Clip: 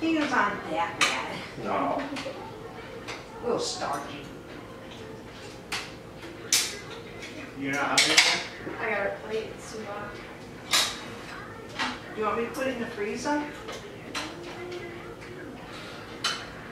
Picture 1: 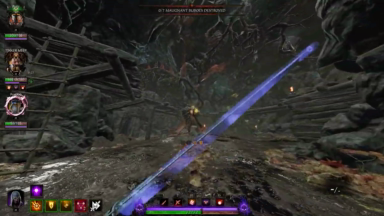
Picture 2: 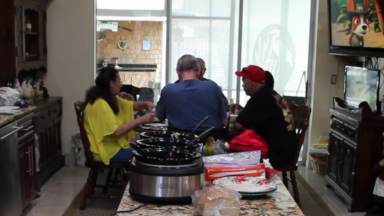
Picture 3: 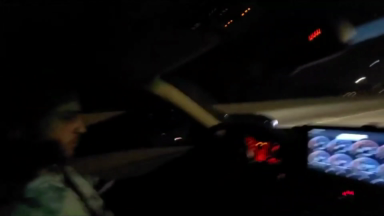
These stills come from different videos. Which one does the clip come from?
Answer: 2